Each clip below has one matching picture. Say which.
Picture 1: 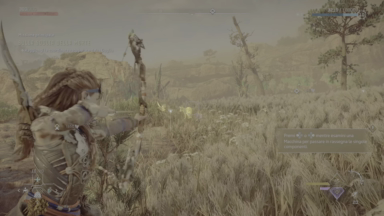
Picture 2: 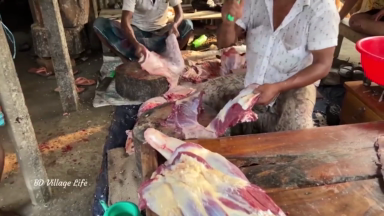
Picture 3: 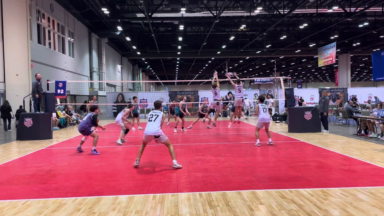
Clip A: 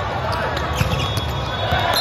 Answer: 3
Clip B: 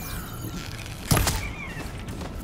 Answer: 1